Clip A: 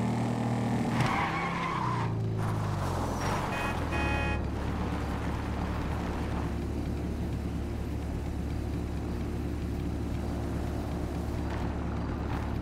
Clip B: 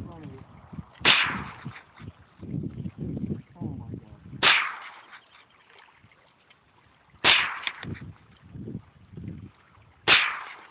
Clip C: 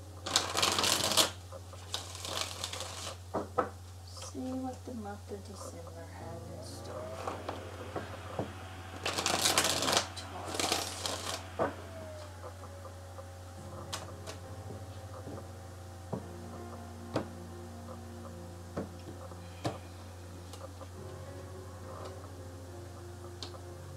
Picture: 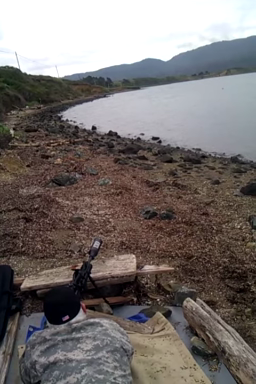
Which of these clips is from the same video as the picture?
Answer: B